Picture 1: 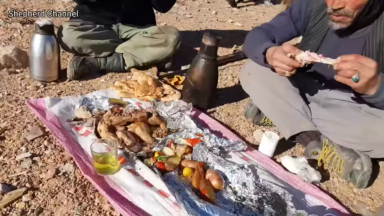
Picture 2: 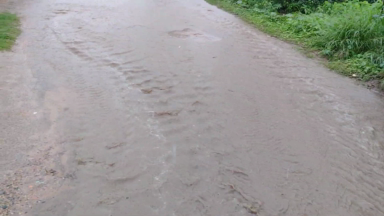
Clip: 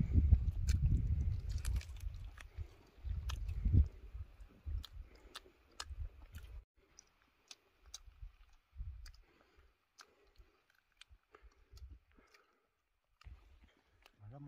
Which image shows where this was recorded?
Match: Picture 1